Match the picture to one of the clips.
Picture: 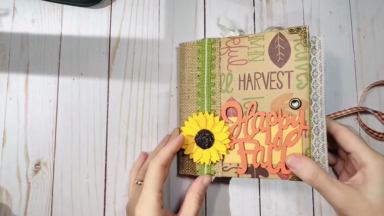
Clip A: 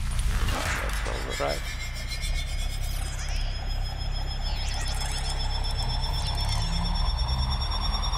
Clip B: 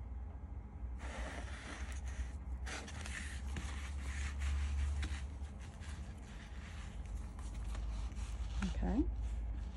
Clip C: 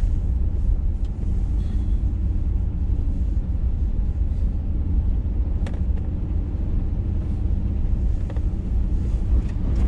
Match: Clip B